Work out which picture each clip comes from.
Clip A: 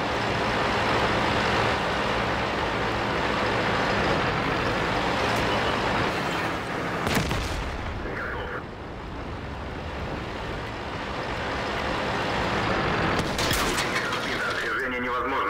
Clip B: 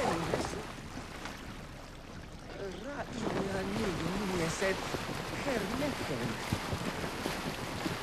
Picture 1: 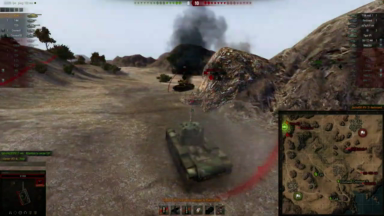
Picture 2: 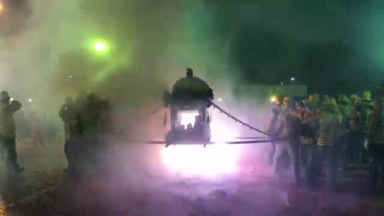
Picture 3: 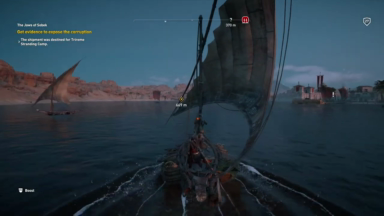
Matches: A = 1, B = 3